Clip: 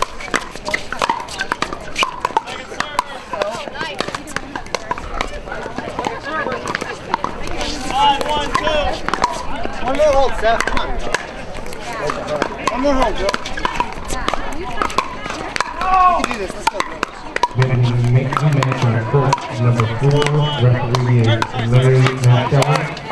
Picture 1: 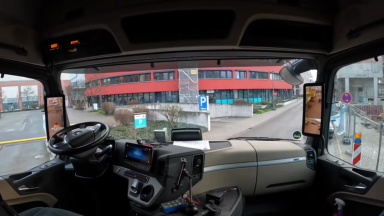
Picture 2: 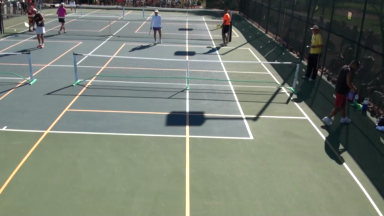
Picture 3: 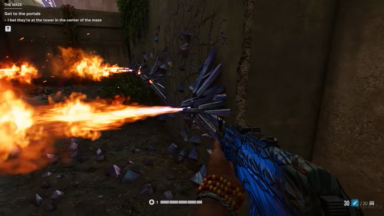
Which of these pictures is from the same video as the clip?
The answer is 2